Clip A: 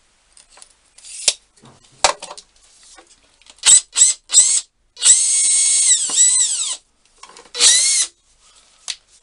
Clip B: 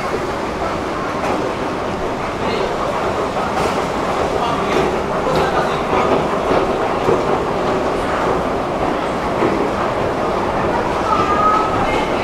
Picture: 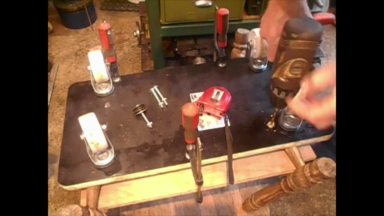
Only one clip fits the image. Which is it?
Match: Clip A